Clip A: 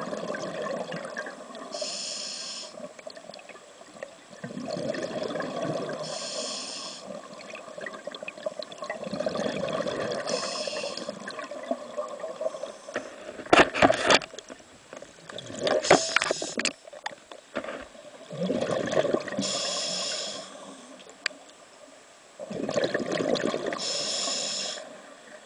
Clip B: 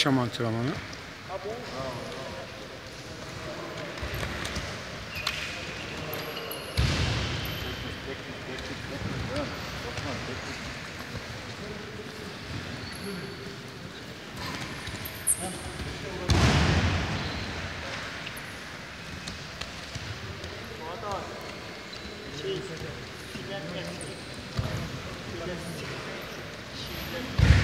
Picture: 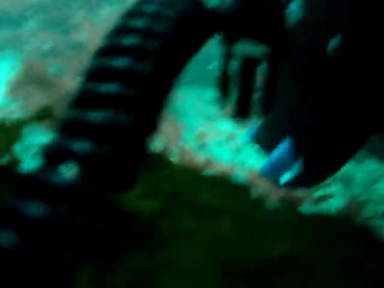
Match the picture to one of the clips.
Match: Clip A